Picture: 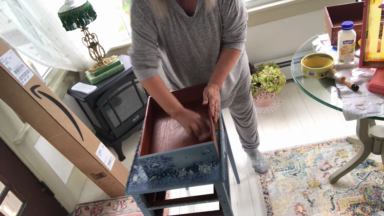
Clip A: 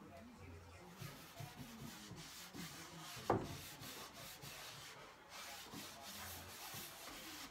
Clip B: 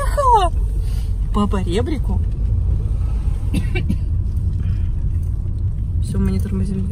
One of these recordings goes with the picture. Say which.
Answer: A